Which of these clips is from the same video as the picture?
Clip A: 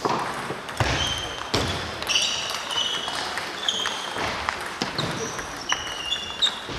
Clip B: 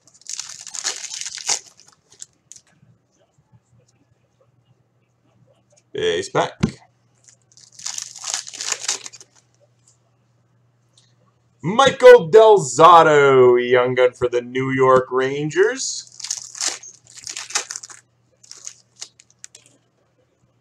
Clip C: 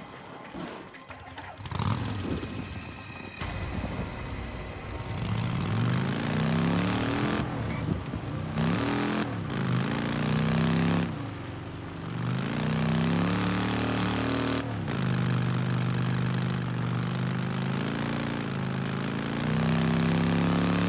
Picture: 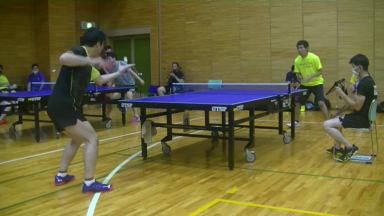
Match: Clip A